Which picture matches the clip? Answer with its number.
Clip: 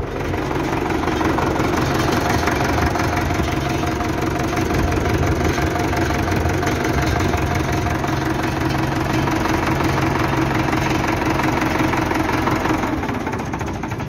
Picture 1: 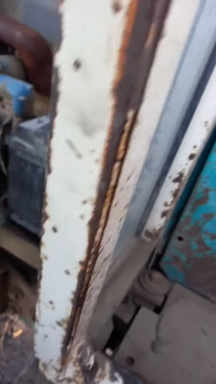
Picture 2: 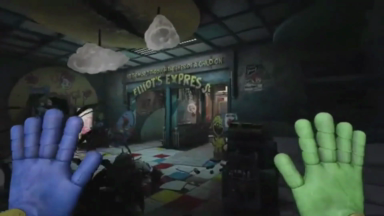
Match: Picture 1